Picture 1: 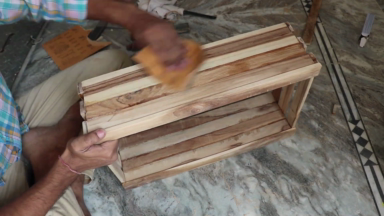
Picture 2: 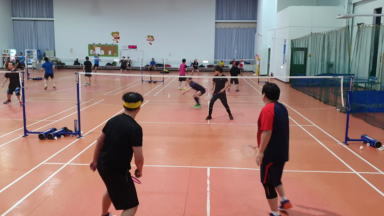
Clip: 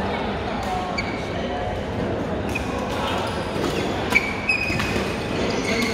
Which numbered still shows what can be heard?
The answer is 2